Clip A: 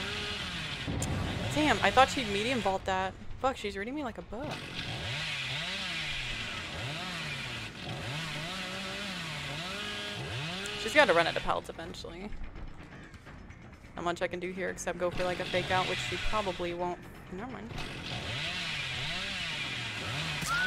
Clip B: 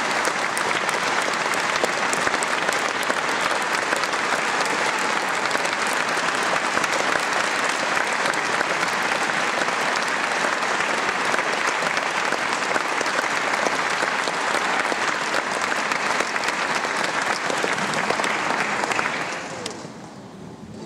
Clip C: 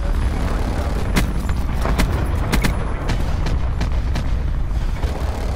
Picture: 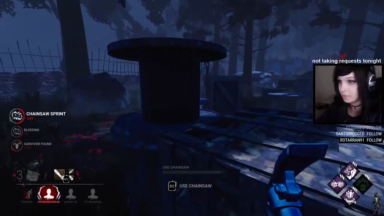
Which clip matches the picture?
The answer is A